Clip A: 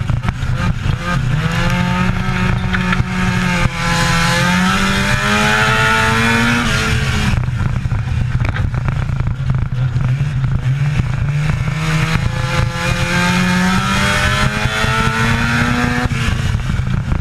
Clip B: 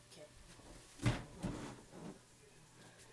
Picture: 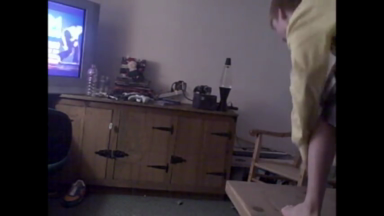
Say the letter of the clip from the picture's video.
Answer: B